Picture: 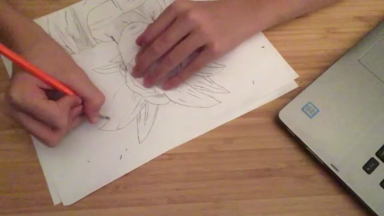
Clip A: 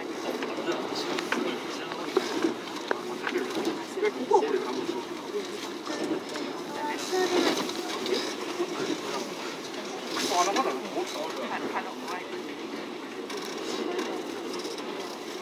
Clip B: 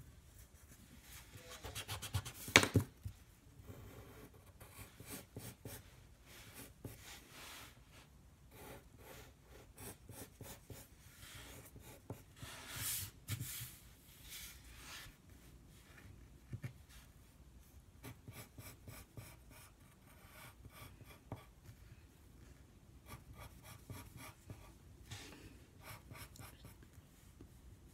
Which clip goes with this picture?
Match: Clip B